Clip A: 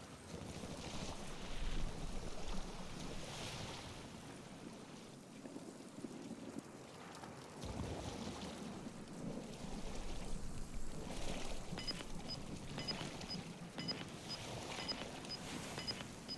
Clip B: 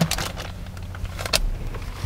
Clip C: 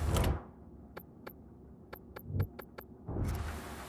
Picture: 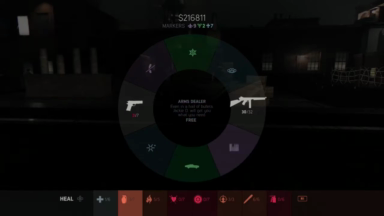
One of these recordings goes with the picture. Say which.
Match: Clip C